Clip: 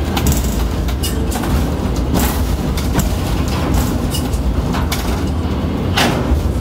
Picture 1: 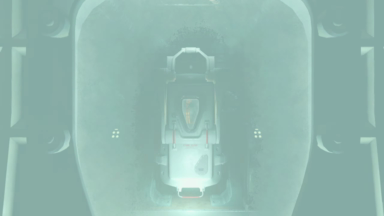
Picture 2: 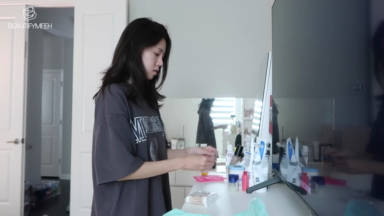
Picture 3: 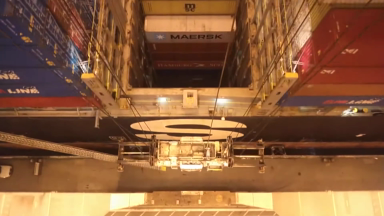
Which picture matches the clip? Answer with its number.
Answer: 3